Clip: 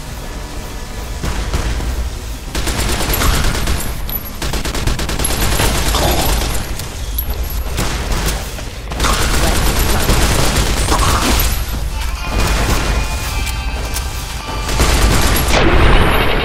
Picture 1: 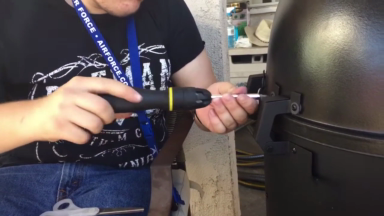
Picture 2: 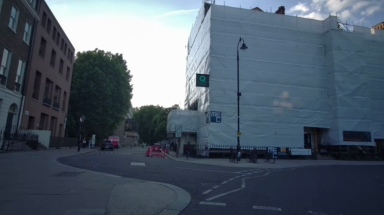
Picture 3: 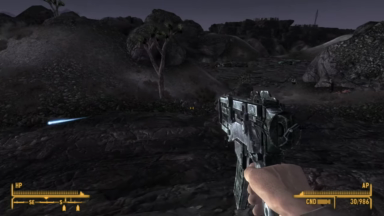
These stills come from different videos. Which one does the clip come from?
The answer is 3